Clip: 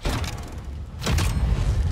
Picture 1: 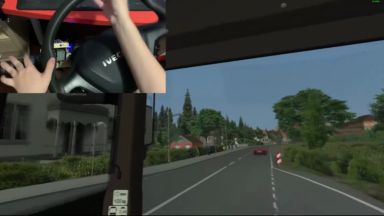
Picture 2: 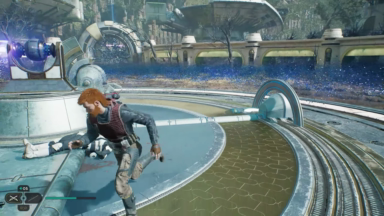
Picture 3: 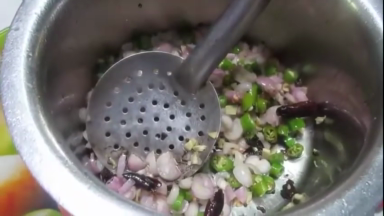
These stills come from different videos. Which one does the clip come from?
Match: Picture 2